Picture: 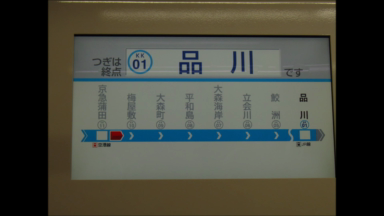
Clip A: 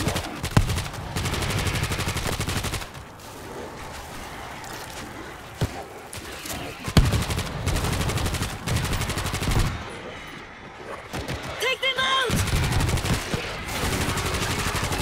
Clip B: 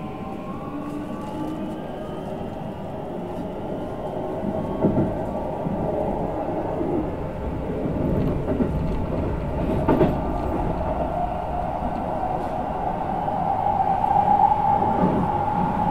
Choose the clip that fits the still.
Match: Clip B